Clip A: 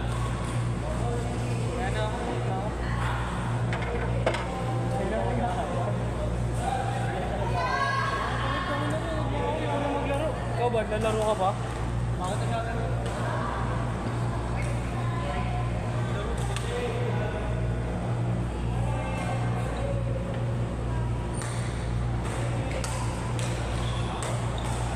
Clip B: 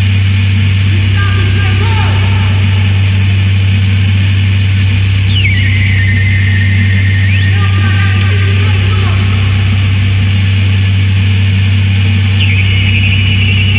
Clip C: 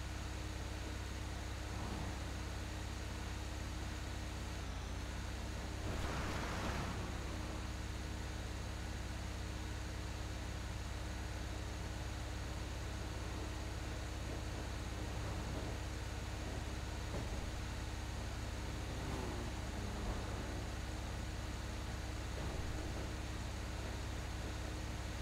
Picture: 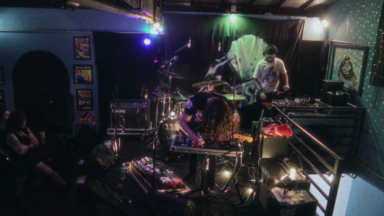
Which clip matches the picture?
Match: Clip B